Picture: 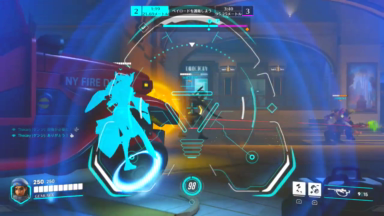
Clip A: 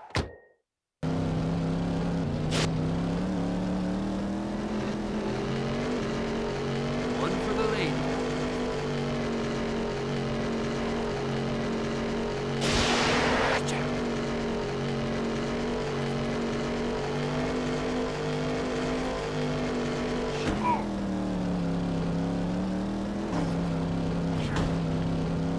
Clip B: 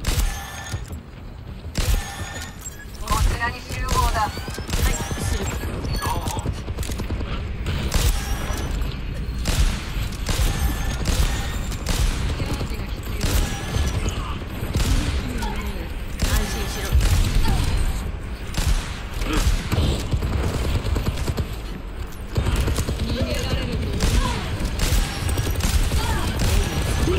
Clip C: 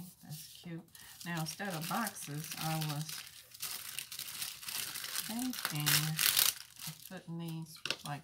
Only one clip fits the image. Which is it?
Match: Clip B